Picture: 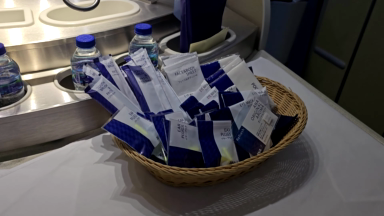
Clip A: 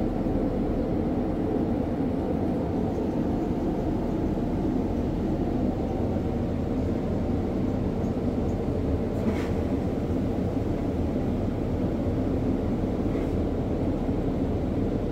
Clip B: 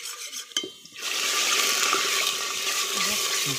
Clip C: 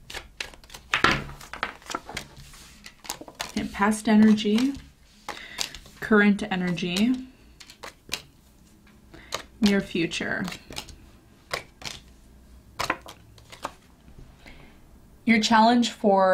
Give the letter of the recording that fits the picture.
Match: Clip A